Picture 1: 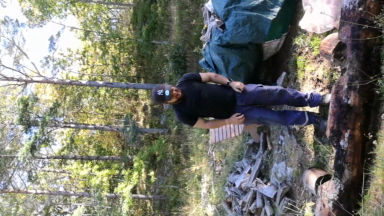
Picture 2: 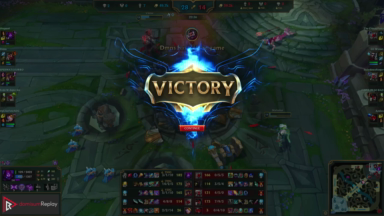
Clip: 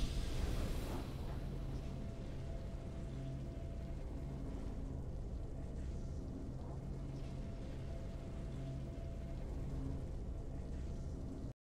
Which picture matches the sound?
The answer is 2